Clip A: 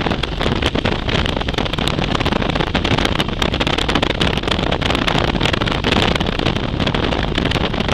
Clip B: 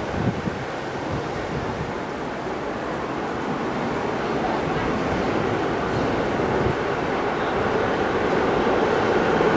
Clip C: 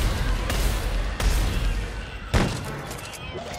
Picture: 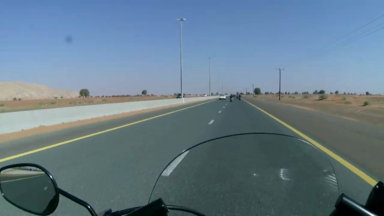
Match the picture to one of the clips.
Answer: A